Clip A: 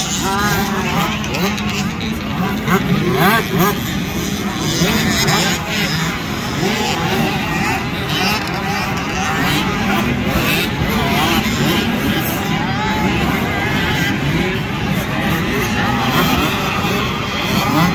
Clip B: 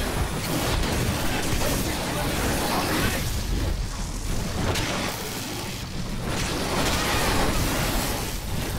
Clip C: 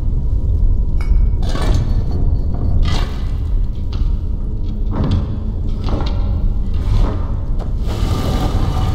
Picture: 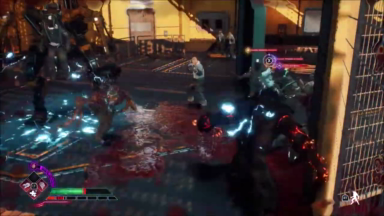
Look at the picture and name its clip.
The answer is B